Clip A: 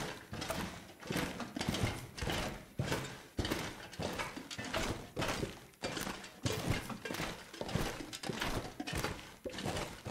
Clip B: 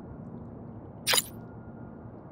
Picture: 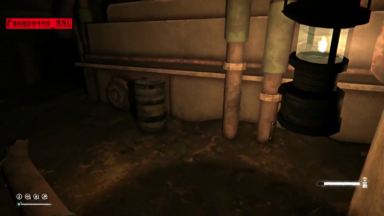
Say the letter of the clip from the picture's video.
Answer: A